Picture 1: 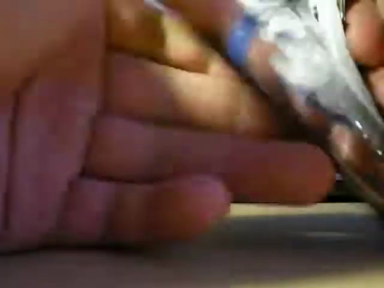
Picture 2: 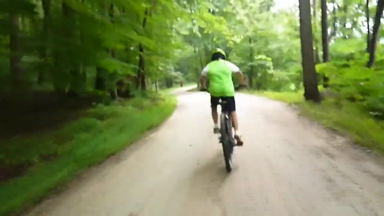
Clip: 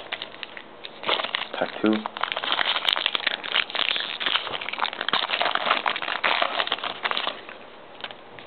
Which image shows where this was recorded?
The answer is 1